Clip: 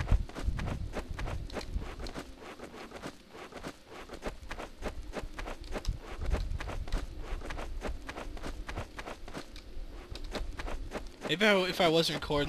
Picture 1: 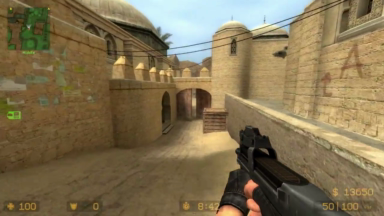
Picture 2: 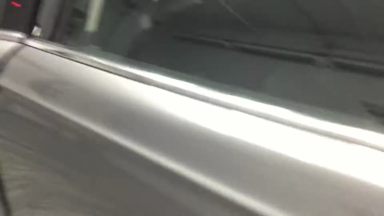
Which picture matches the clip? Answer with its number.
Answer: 1